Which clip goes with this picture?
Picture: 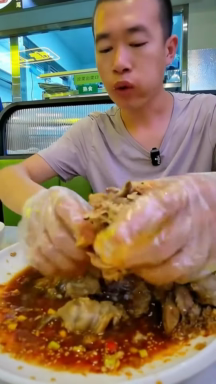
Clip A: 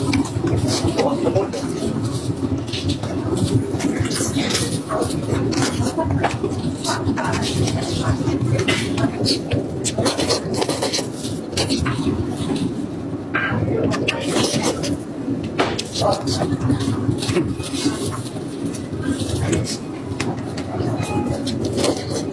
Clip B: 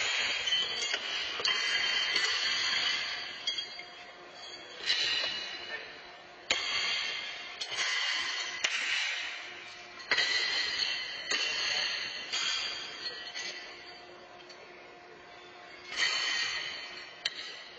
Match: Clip A